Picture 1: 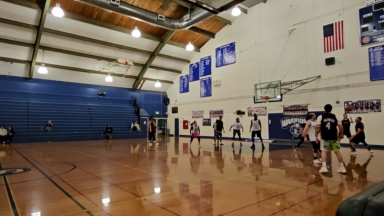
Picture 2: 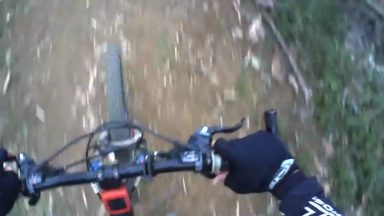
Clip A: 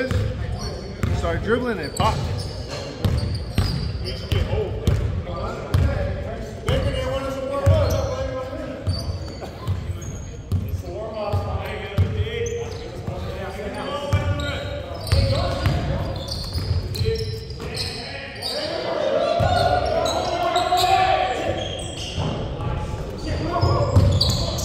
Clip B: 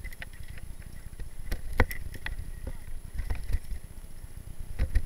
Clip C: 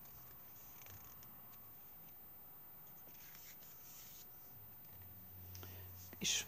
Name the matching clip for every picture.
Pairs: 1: A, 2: B